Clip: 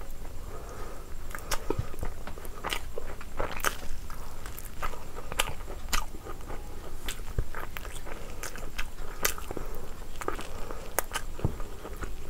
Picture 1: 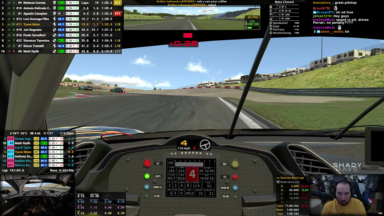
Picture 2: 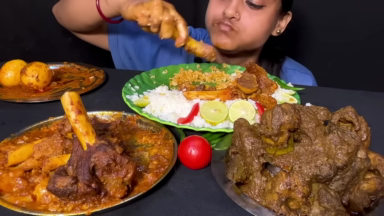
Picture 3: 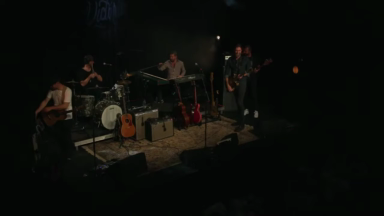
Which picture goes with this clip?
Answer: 2